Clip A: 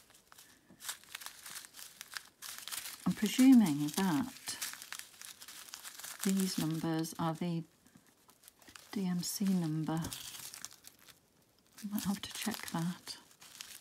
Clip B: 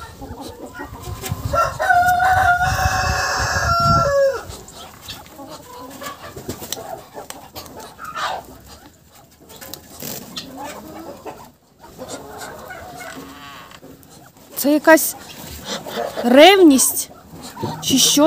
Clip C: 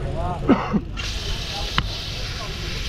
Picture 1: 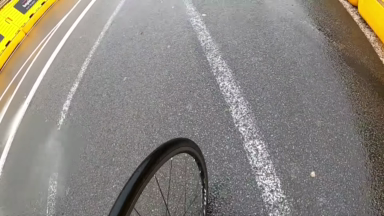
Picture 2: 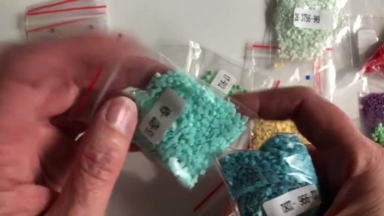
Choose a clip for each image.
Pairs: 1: C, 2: A